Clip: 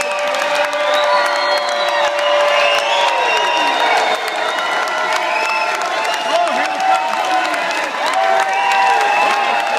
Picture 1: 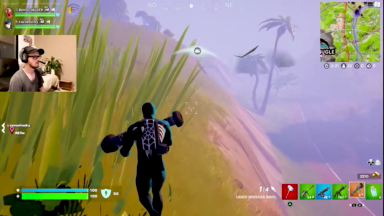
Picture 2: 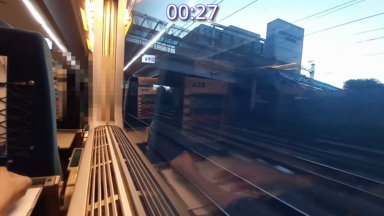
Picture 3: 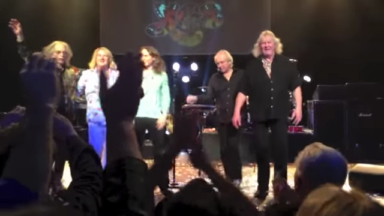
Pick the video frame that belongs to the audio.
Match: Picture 3